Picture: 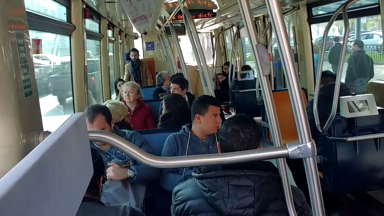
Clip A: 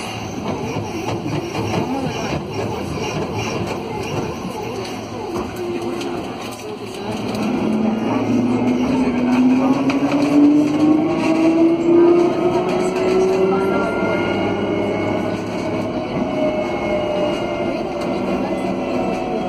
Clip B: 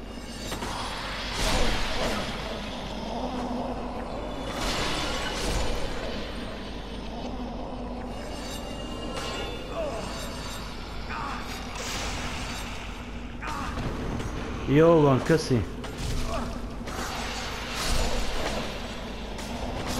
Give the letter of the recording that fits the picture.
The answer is A